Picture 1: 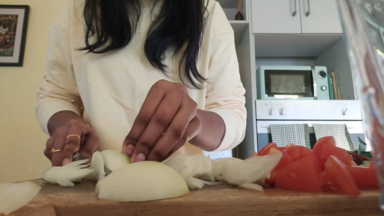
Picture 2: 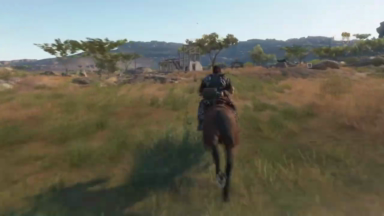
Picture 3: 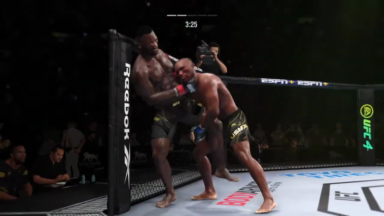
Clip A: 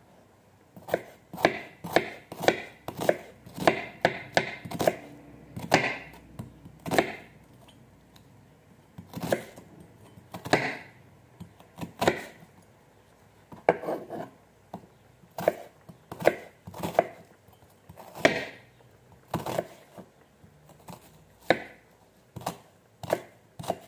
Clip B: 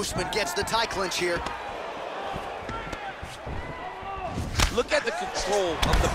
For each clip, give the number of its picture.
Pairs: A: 1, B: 3